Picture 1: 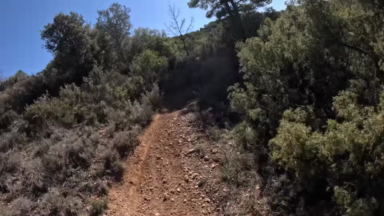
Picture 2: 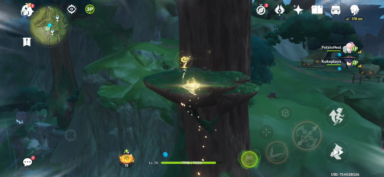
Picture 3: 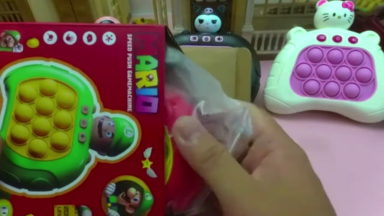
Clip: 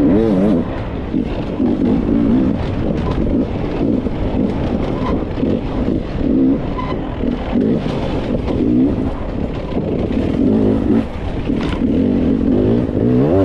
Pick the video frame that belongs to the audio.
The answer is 1